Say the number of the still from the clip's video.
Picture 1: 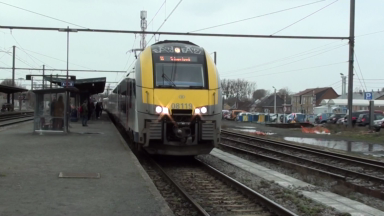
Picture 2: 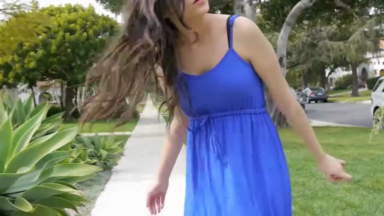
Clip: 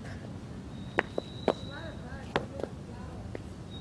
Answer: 2